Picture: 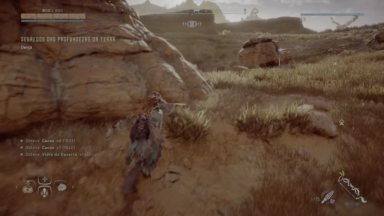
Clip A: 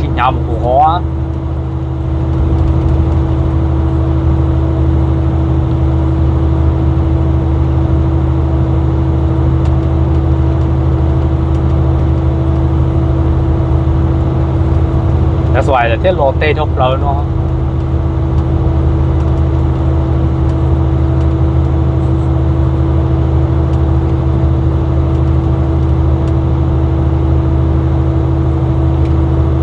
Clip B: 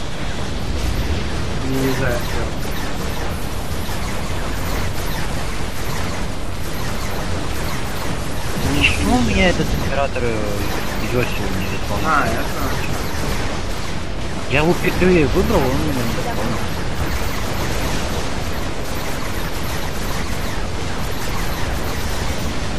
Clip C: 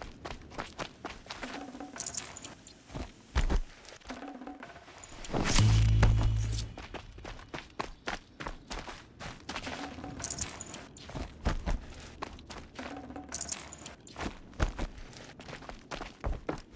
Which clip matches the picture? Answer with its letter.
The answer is C